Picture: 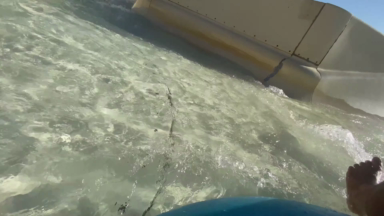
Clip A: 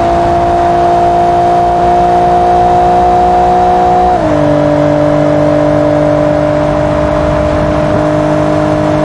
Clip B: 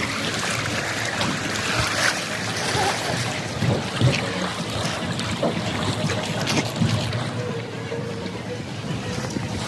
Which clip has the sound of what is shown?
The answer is B